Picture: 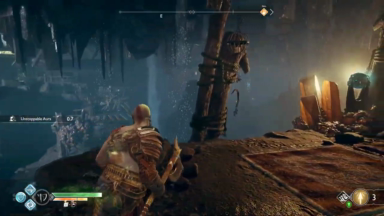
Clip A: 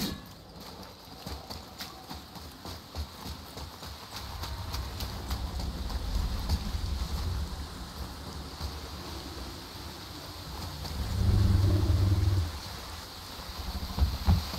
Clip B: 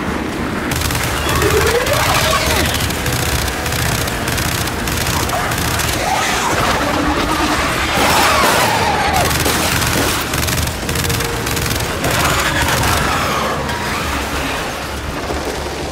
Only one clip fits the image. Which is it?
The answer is A